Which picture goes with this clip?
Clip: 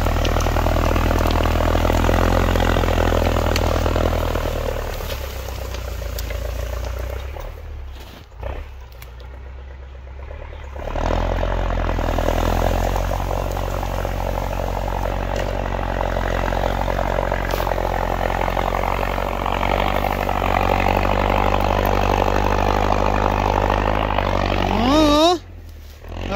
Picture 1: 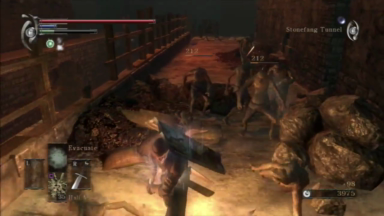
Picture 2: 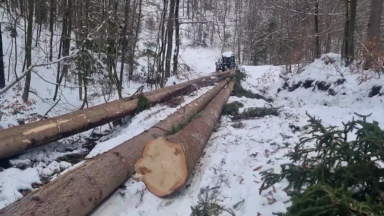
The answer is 2